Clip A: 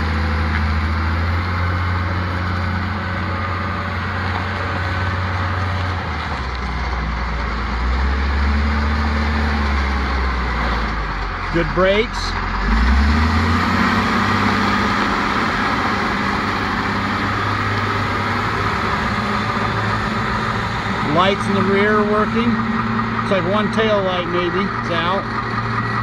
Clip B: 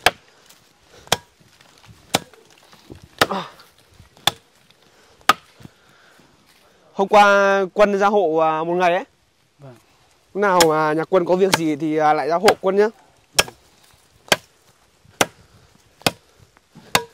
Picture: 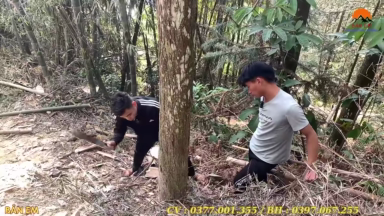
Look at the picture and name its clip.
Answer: B